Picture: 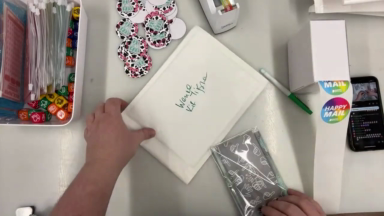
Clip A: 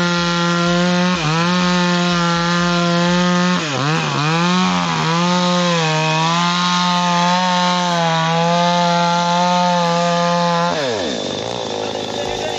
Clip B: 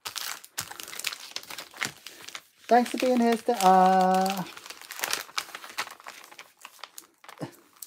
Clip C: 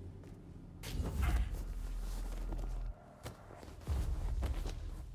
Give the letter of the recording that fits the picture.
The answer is B